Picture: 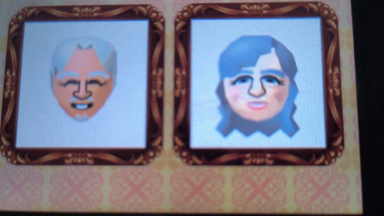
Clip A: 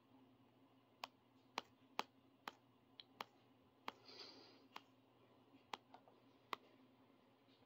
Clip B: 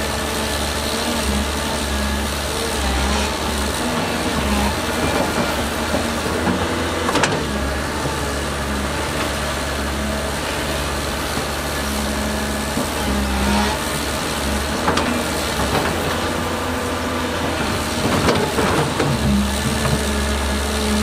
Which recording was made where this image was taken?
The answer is A